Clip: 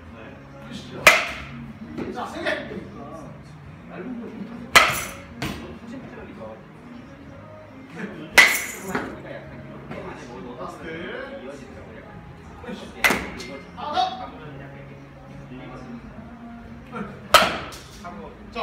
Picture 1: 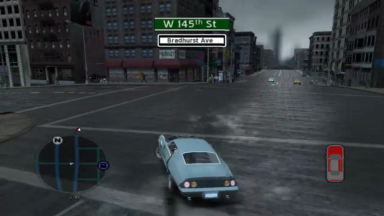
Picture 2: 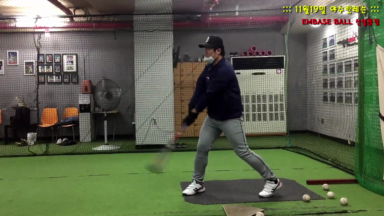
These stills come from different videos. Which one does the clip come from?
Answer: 2